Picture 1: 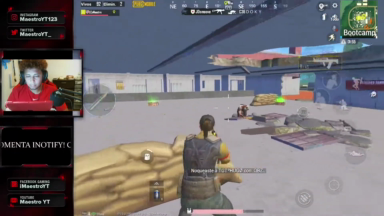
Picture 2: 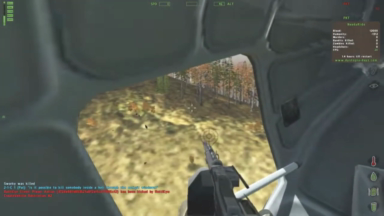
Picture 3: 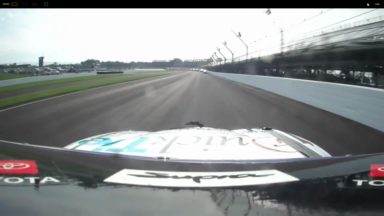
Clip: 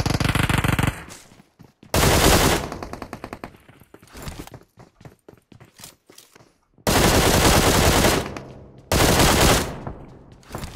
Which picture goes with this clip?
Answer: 1